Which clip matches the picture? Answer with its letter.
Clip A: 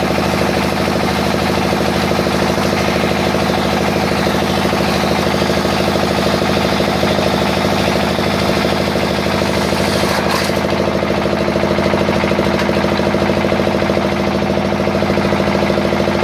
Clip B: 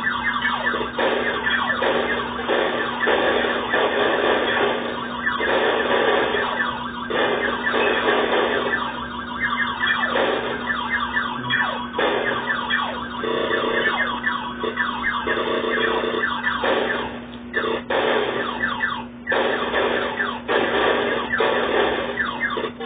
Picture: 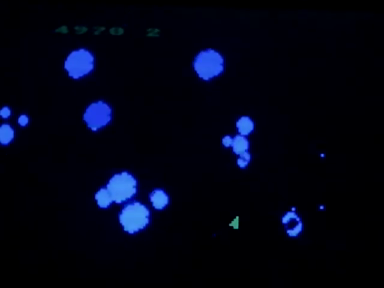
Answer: B